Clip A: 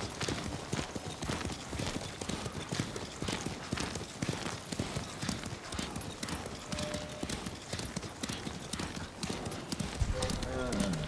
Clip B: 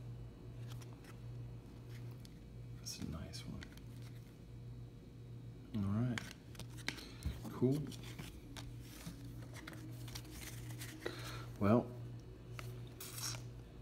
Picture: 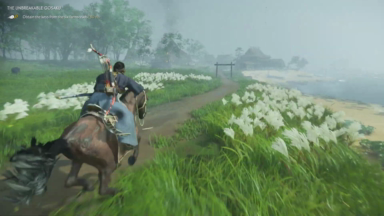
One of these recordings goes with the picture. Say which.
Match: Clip A